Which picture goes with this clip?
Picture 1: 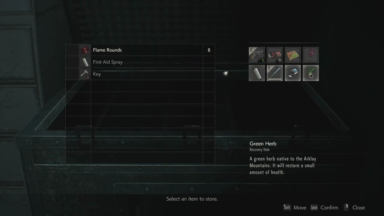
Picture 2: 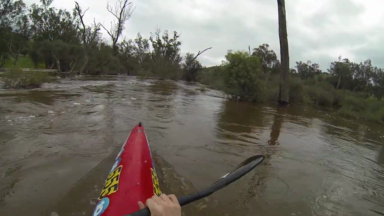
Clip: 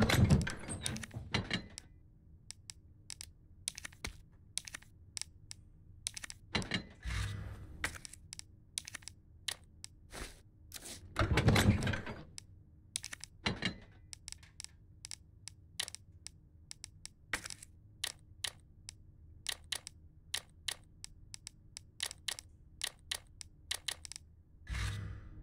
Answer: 1